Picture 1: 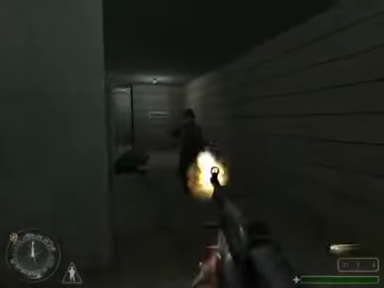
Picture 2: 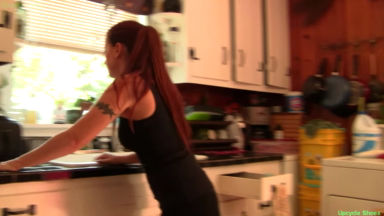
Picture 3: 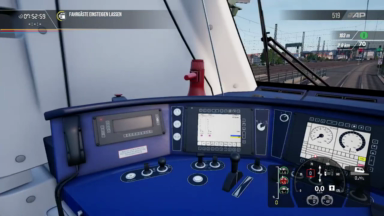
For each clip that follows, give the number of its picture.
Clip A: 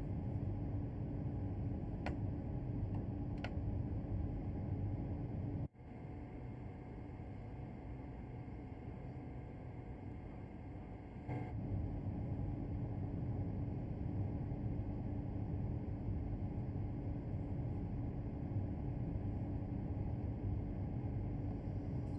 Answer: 3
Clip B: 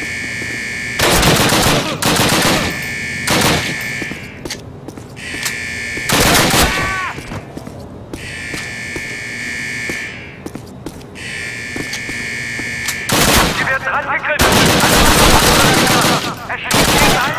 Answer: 1